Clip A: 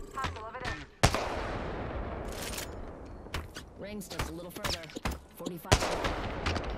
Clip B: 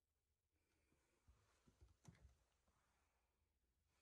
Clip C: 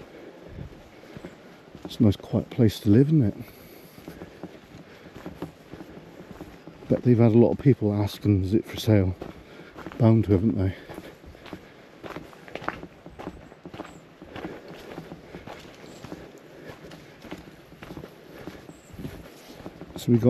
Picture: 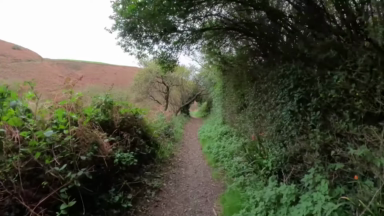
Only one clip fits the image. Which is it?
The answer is C